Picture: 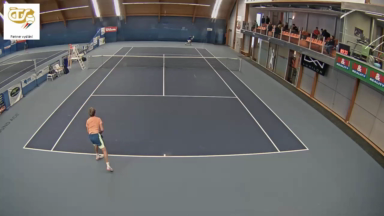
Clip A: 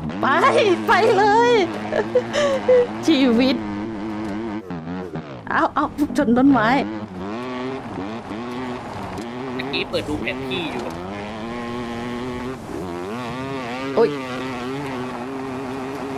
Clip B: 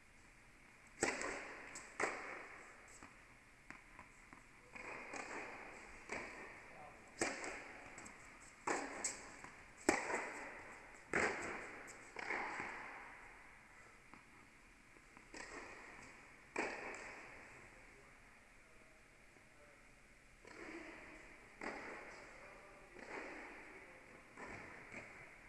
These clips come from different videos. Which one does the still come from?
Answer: B